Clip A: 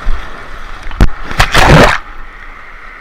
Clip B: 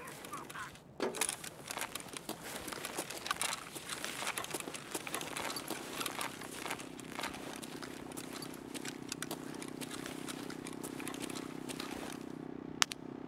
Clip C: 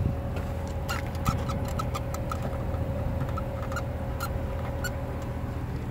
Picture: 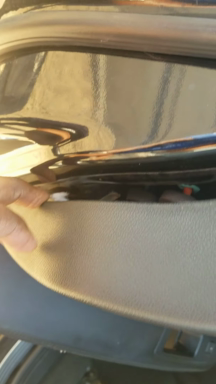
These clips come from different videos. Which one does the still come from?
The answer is C